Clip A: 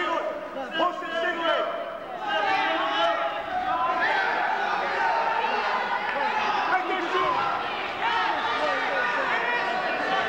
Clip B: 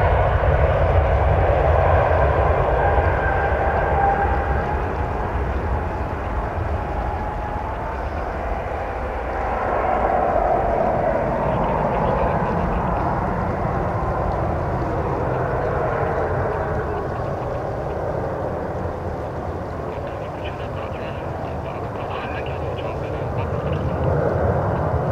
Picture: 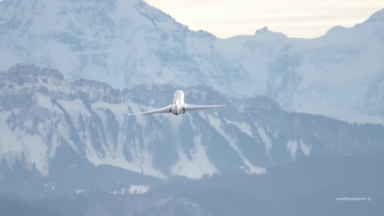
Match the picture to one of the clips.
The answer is B